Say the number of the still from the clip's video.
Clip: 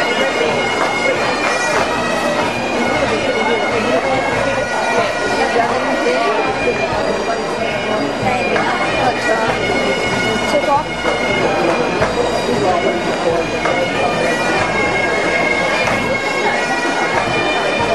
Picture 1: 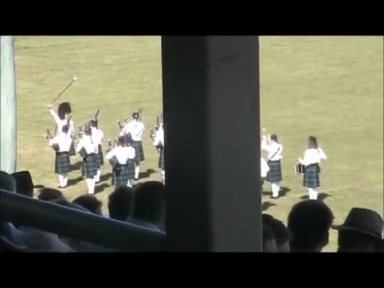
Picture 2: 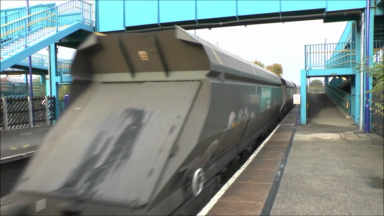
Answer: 1